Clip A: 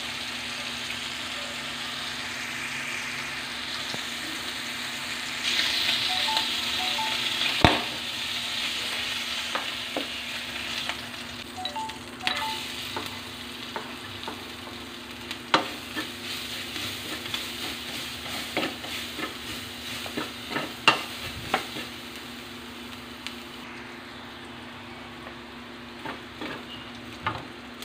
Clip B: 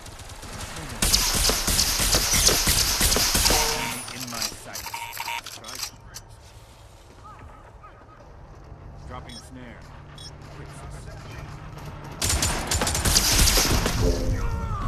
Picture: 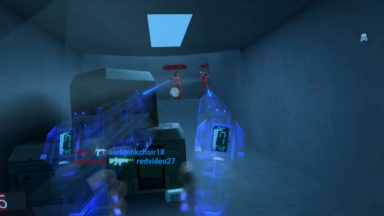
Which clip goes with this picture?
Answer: B